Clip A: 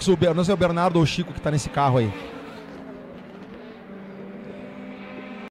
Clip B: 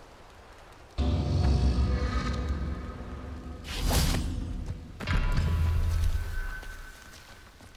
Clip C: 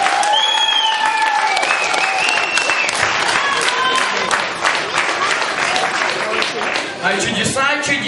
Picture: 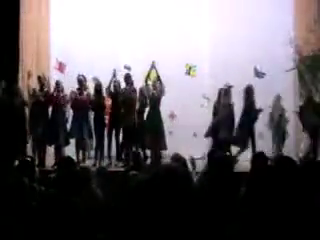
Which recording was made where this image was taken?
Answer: C